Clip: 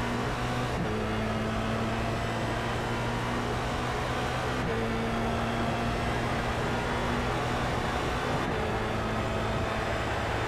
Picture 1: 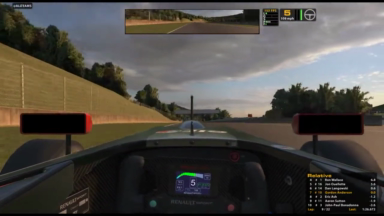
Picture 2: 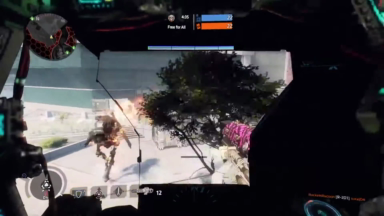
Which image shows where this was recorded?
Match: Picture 1